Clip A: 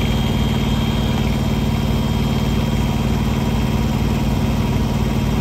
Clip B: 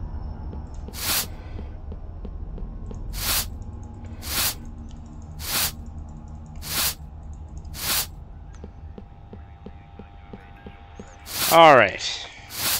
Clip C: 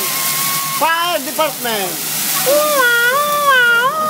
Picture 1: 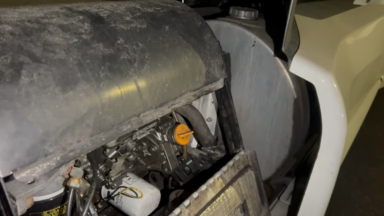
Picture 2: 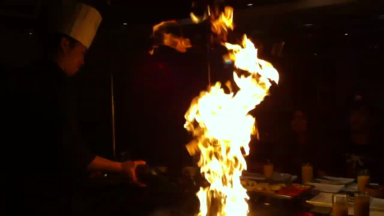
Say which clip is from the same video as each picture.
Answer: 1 A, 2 C